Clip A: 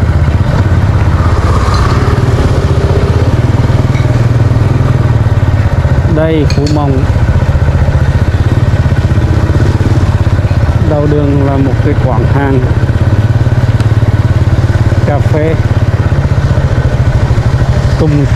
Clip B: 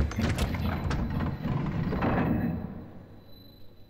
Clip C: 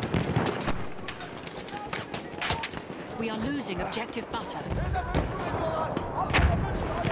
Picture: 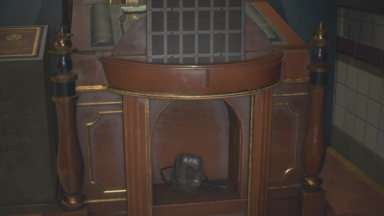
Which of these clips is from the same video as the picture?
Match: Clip B